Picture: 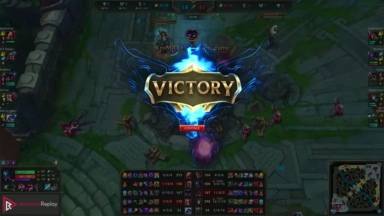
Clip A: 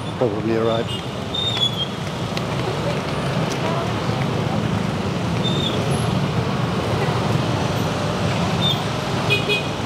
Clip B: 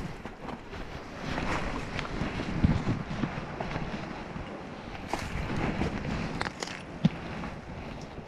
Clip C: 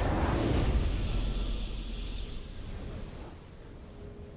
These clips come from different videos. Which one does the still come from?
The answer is C